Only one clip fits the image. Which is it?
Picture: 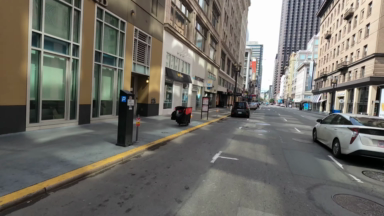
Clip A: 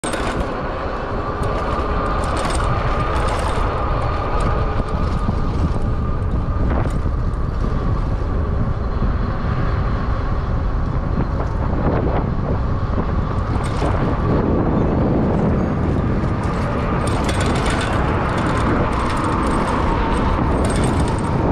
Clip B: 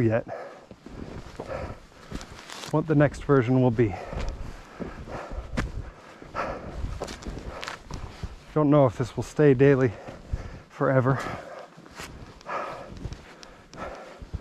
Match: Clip A